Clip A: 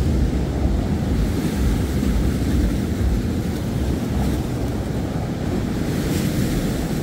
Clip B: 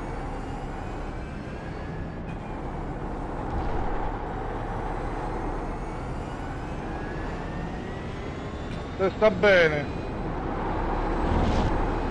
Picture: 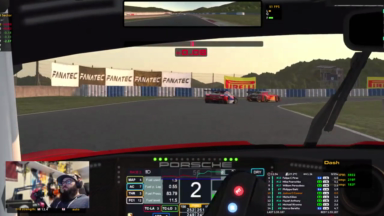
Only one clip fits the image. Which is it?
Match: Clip B